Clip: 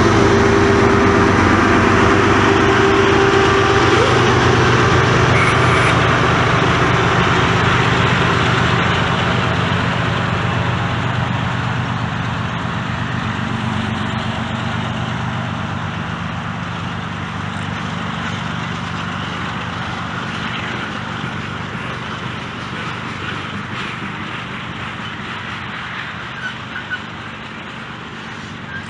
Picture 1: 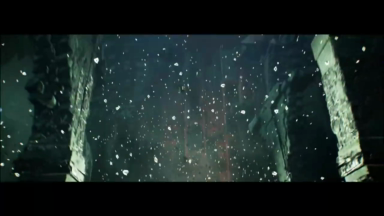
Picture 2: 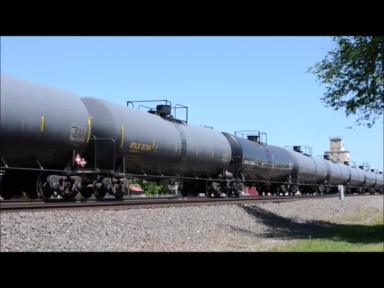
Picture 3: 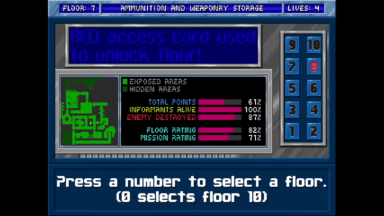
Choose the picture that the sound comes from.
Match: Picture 2